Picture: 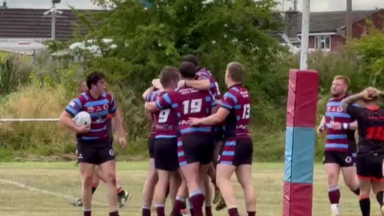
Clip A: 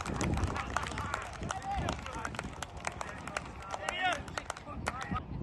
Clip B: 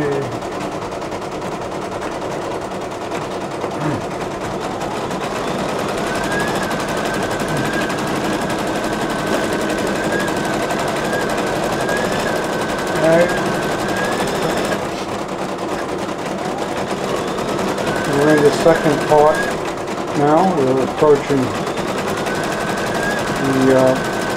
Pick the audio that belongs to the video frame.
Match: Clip A